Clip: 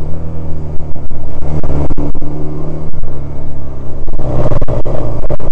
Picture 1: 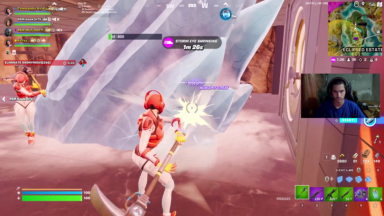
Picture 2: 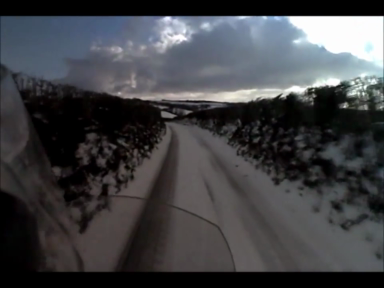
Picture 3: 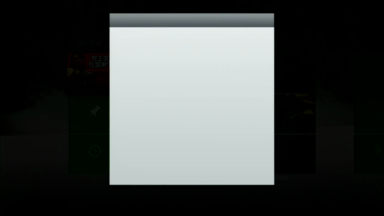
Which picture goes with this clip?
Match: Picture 2